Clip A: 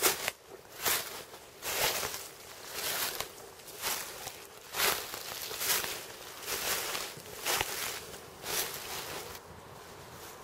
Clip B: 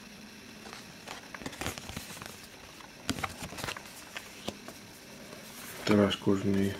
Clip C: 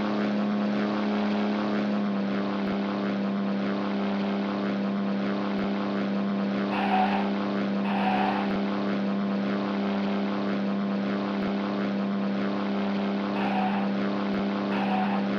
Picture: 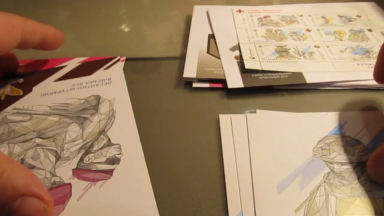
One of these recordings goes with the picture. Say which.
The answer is B